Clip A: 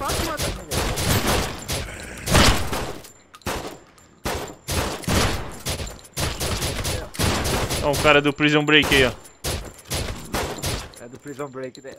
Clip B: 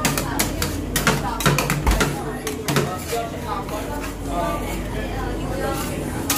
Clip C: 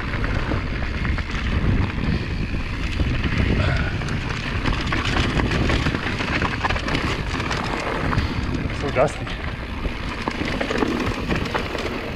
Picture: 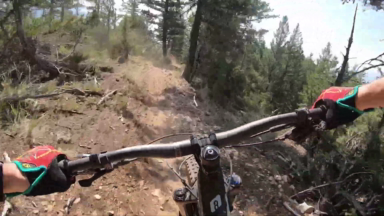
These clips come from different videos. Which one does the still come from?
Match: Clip C